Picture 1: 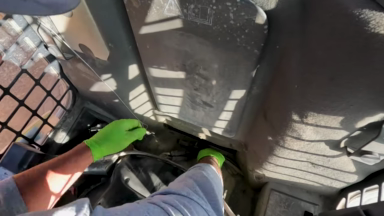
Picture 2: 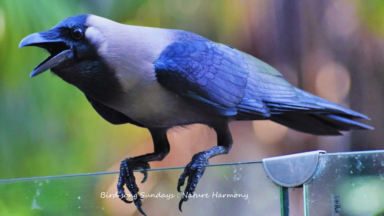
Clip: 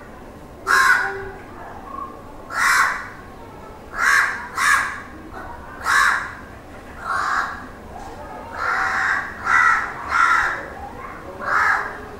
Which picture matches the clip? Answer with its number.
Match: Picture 2